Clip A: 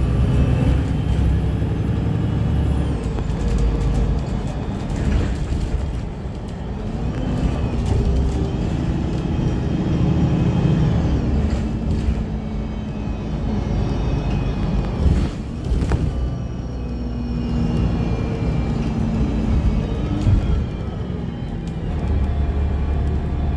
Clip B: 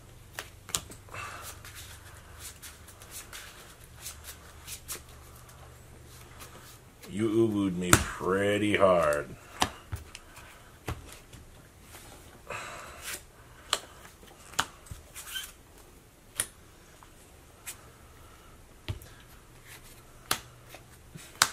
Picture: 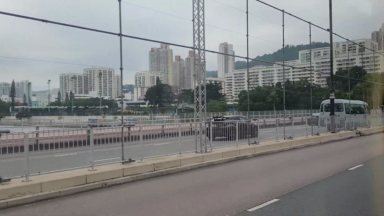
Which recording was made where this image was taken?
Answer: A